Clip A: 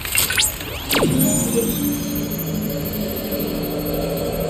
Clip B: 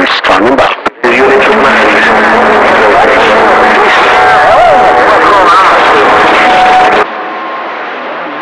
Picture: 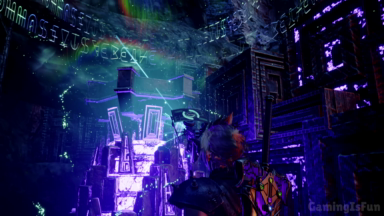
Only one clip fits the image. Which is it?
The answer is A